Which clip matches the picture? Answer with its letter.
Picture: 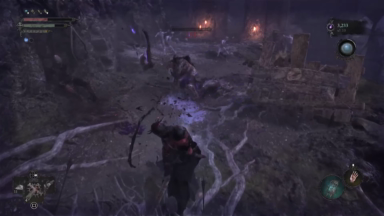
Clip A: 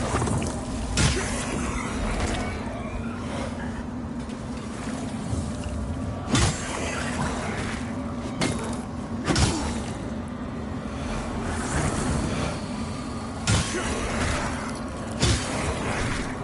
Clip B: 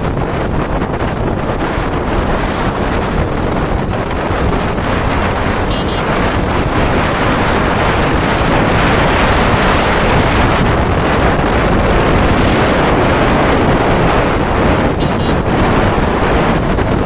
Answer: A